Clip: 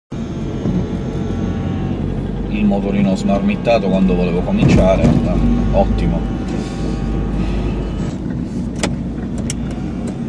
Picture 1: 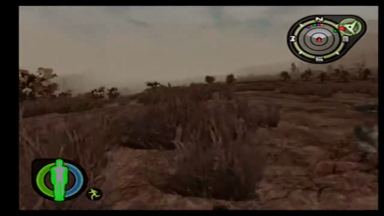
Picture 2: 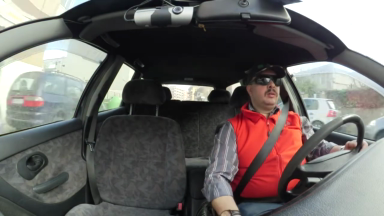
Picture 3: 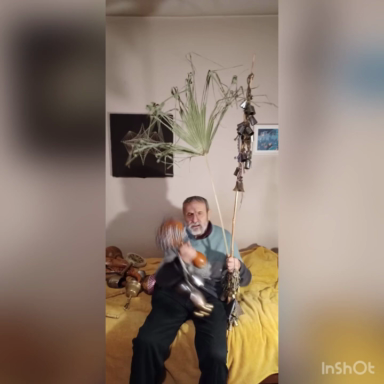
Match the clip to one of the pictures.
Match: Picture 2